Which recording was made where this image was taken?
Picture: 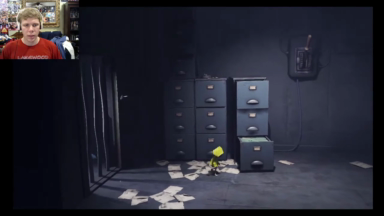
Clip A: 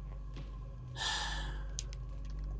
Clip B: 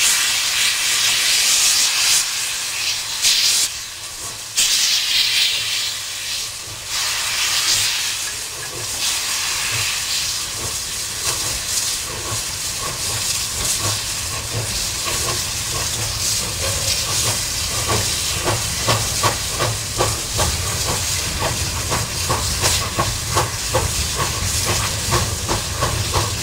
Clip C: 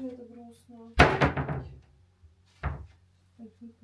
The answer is A